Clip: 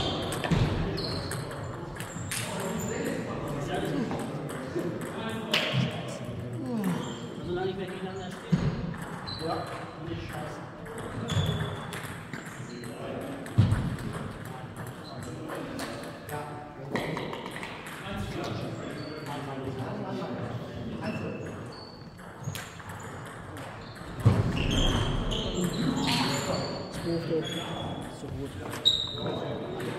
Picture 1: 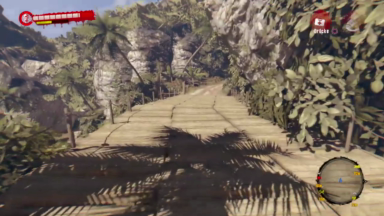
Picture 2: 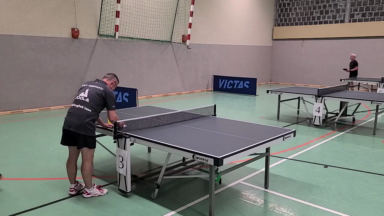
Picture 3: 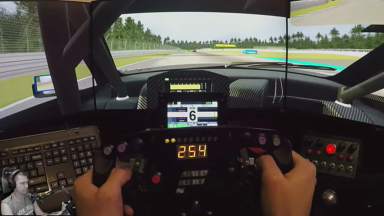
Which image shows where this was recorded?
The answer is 2